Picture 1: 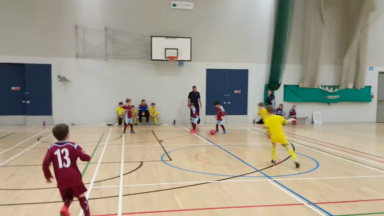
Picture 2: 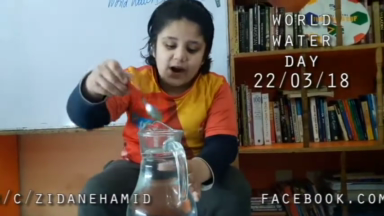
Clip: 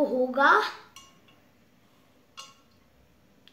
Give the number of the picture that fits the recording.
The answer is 2